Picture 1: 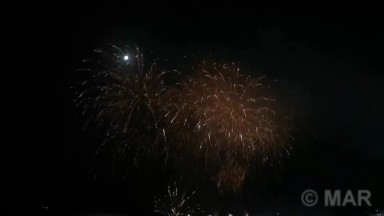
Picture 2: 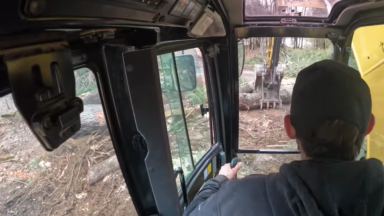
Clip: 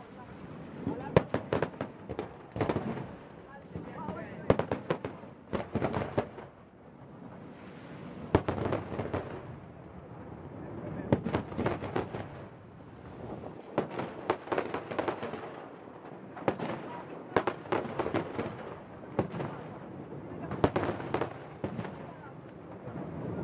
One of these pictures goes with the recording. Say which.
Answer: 1